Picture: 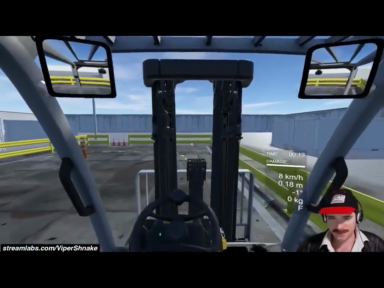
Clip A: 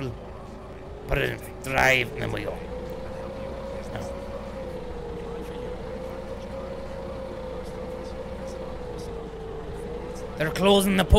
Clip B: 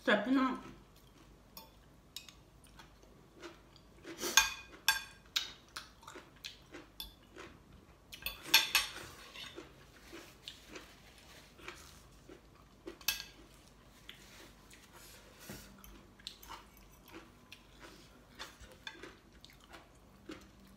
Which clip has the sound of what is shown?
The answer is A